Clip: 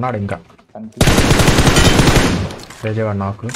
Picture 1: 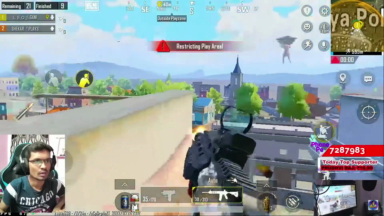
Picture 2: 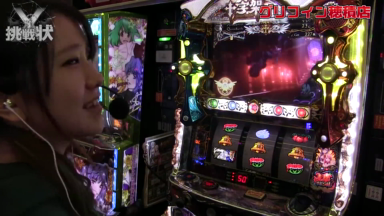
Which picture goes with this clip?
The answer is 1